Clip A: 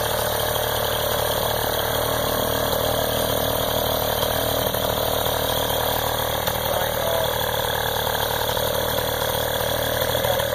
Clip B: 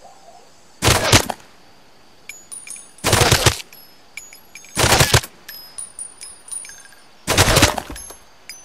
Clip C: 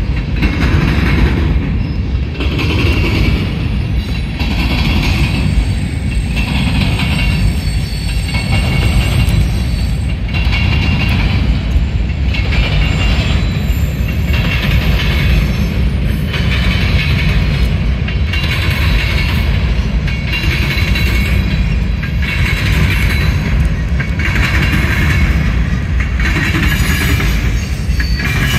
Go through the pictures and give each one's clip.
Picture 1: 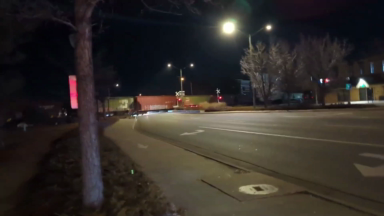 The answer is C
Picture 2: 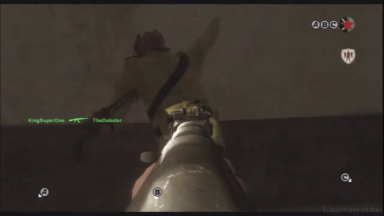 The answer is B